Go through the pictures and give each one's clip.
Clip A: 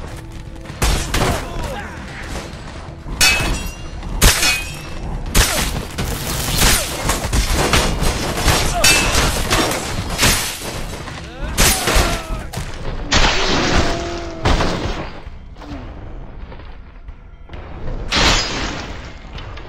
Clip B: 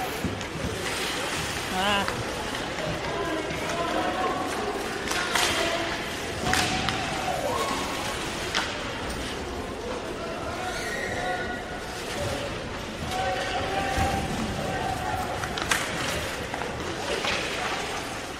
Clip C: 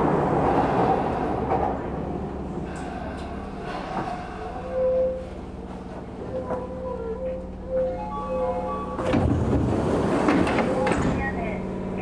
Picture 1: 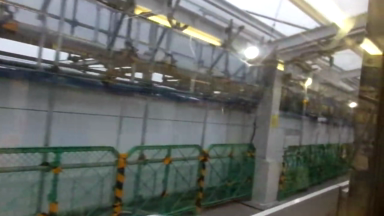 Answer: C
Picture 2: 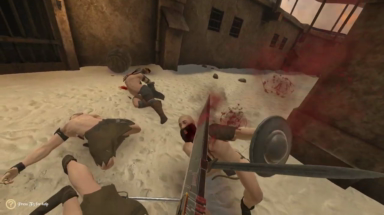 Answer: A